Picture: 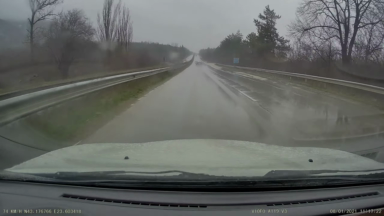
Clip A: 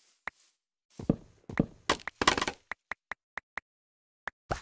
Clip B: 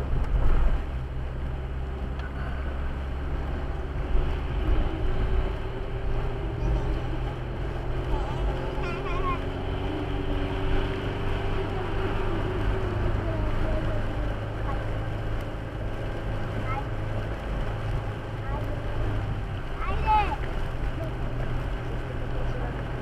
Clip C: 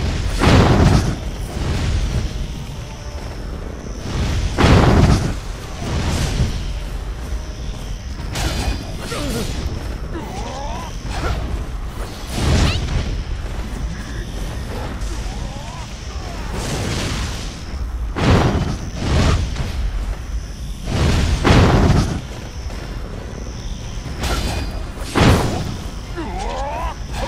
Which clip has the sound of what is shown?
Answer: B